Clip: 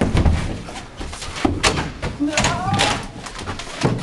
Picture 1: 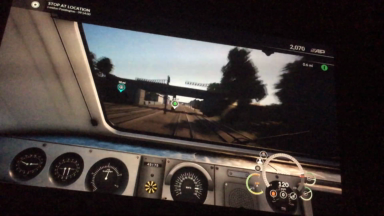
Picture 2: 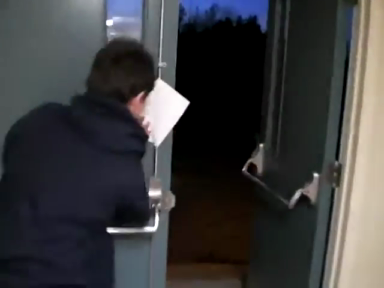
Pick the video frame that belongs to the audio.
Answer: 2